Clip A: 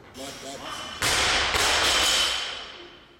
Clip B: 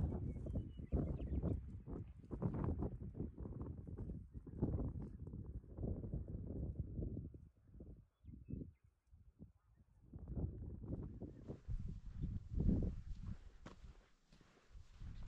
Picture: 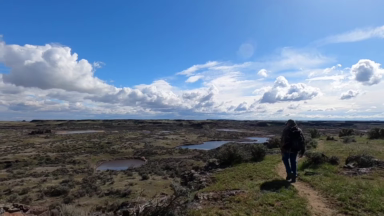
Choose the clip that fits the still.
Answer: B